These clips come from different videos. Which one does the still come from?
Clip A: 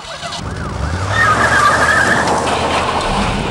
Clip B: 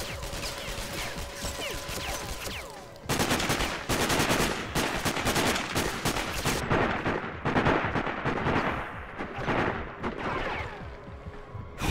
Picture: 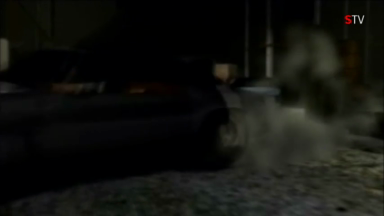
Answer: A